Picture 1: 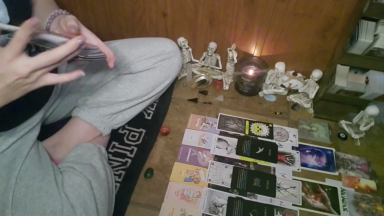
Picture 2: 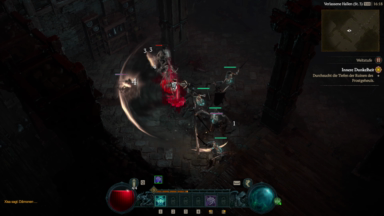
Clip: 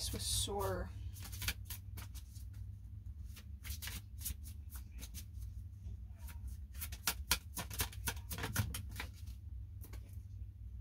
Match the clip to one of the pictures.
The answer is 1